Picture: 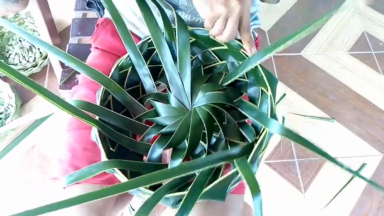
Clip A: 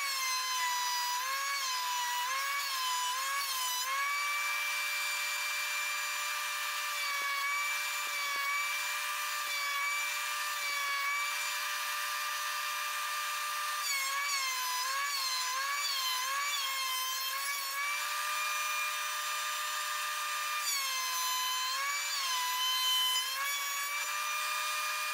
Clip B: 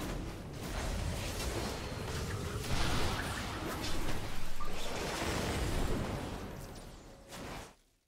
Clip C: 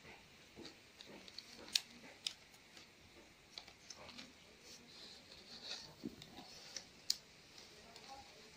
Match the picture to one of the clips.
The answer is C